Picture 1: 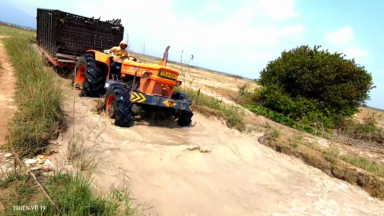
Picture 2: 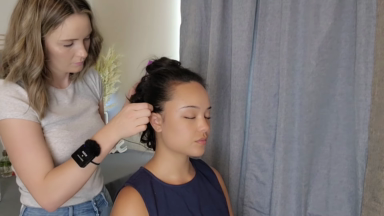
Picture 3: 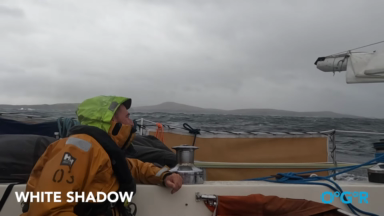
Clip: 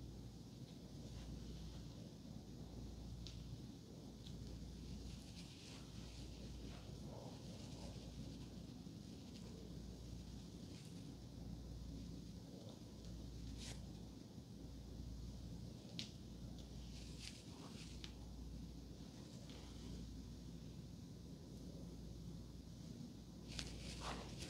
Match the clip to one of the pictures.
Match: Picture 2